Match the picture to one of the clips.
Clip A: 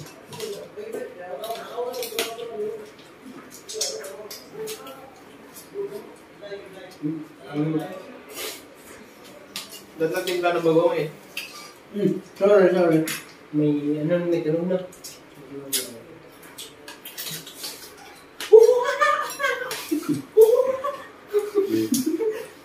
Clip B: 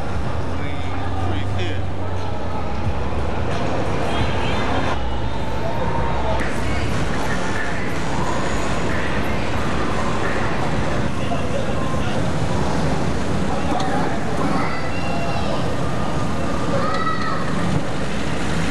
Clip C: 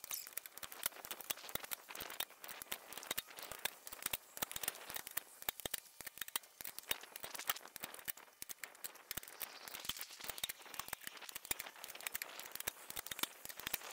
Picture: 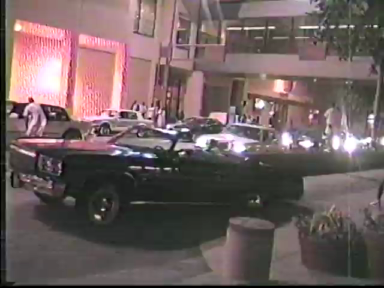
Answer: B